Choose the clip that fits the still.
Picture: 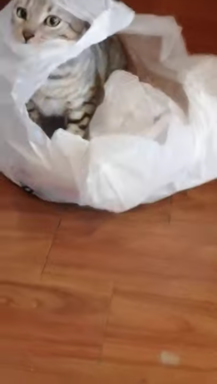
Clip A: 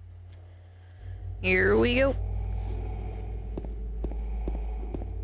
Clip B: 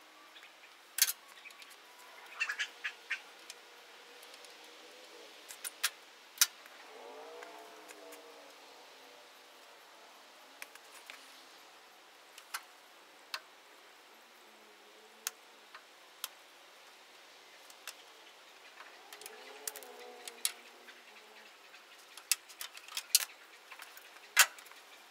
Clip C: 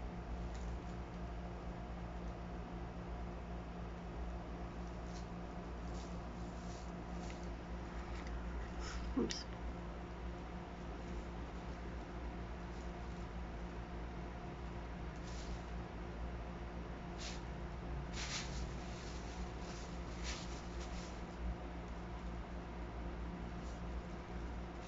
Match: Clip C